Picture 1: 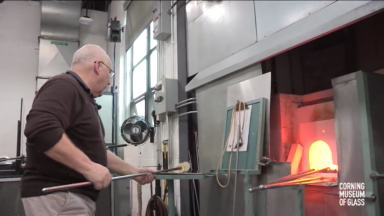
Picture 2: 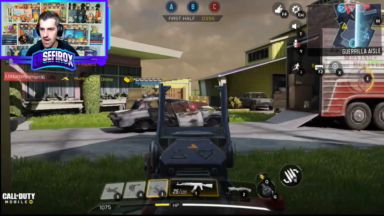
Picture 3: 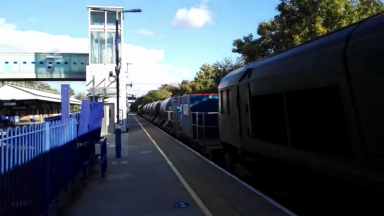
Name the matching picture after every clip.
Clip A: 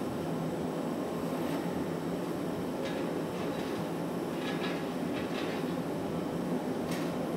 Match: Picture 1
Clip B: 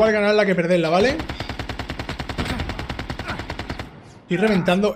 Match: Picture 2